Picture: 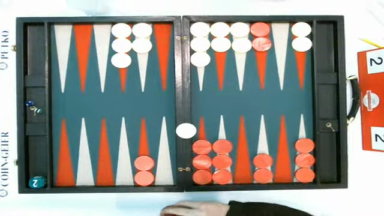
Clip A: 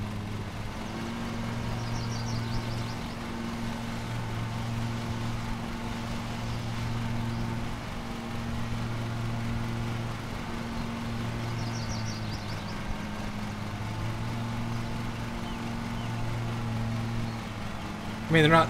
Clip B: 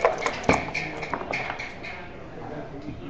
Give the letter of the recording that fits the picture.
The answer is B